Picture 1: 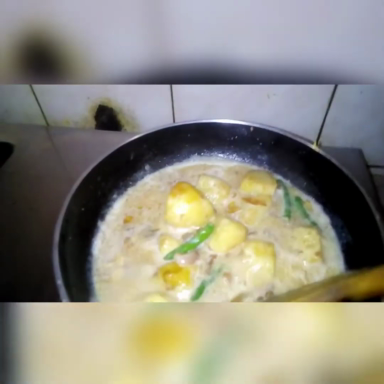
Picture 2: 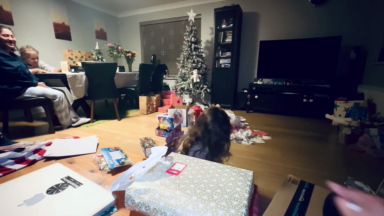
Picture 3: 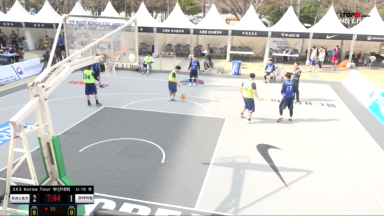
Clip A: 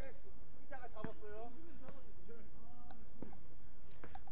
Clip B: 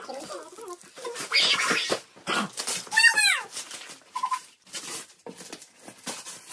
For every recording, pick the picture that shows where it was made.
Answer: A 3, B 2